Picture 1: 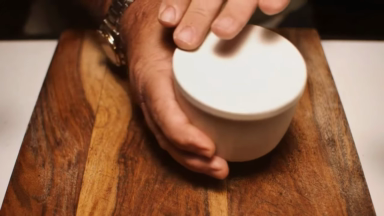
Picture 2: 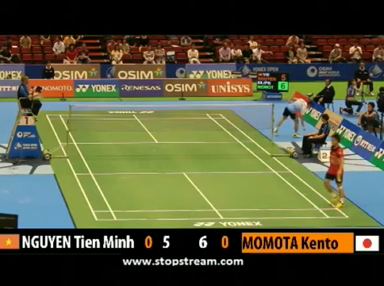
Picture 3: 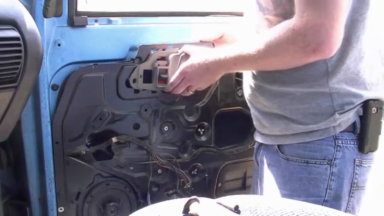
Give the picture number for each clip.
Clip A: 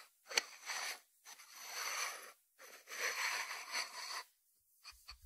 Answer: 1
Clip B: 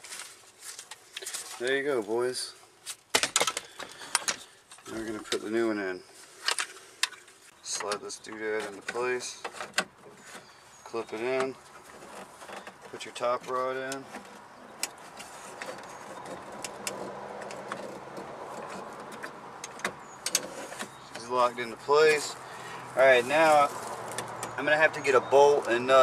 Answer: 3